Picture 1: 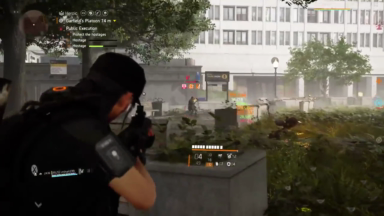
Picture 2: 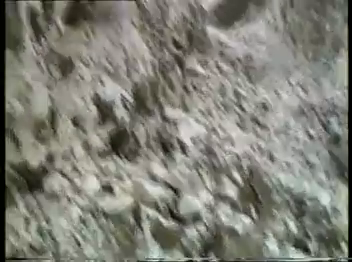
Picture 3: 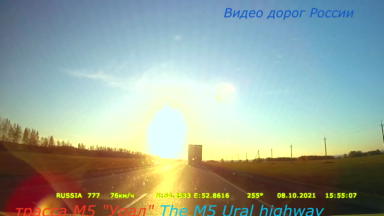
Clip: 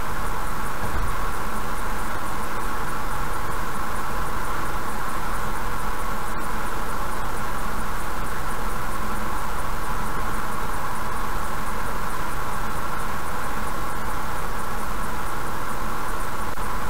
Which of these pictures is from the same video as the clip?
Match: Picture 3